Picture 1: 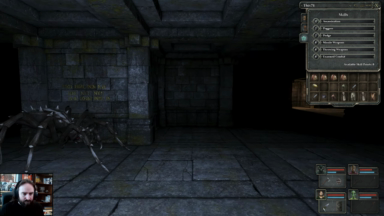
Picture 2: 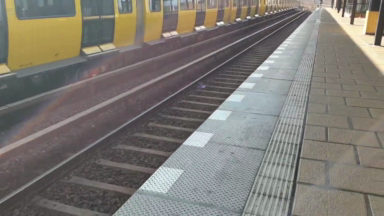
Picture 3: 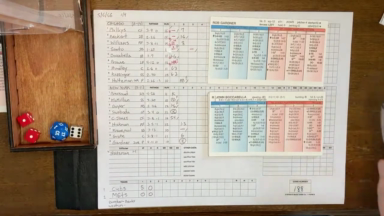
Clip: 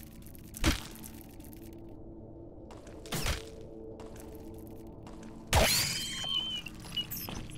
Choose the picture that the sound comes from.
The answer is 1